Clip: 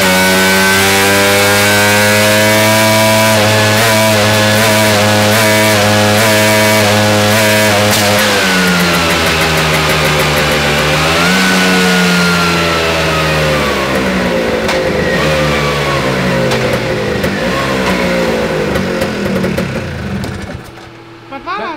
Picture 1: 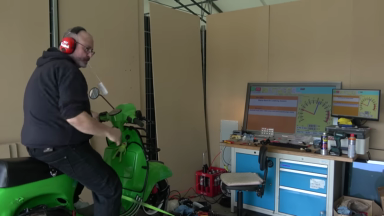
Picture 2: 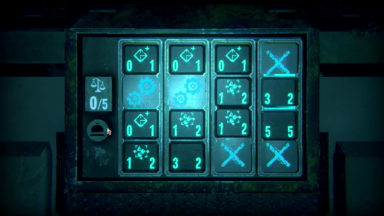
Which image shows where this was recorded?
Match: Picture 1